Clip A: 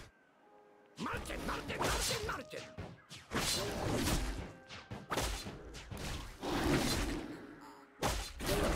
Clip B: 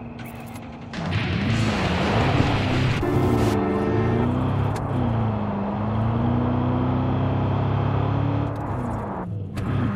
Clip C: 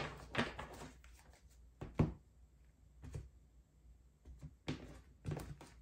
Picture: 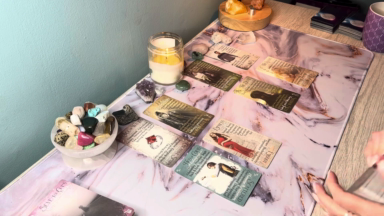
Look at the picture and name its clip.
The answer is C